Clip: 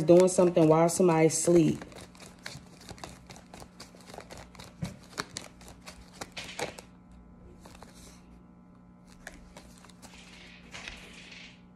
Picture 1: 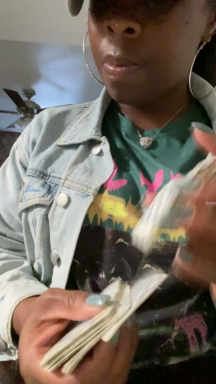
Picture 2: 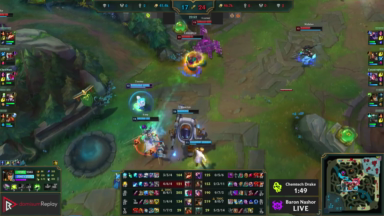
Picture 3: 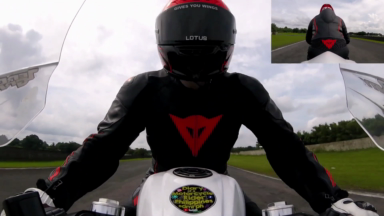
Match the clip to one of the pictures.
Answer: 1